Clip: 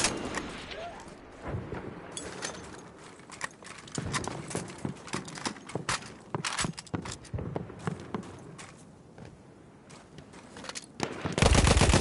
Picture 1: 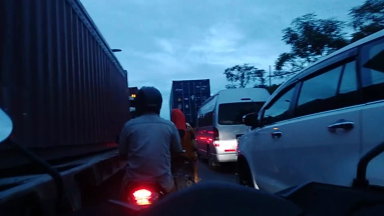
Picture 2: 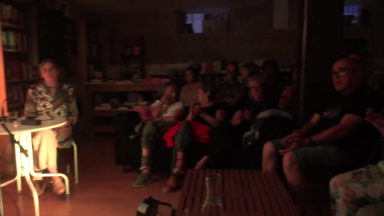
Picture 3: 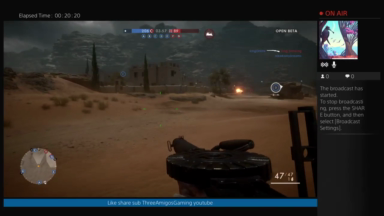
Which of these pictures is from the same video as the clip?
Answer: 3